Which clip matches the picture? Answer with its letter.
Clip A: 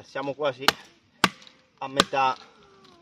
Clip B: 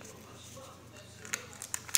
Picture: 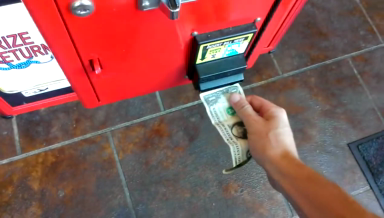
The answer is B